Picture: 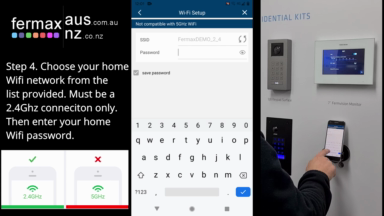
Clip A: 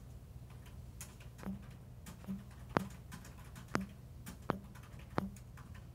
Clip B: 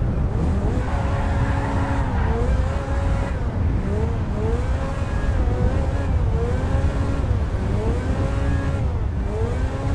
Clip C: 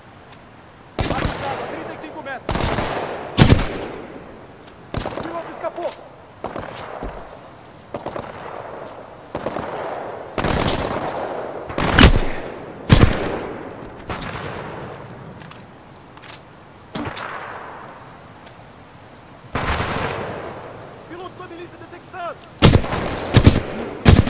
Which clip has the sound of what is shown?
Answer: A